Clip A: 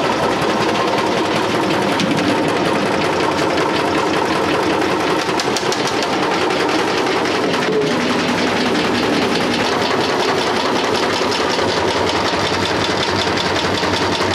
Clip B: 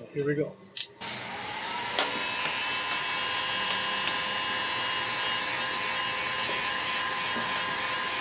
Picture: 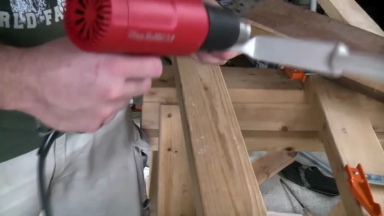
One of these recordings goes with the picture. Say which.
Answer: B